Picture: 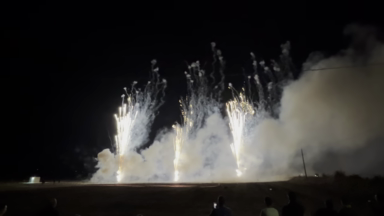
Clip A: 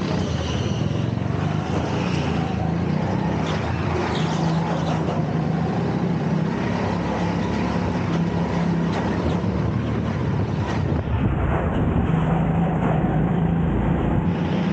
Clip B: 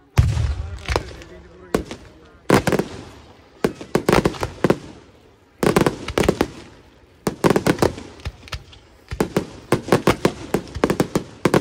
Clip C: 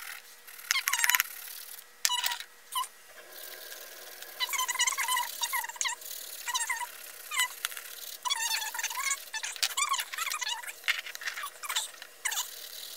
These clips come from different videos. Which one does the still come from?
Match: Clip B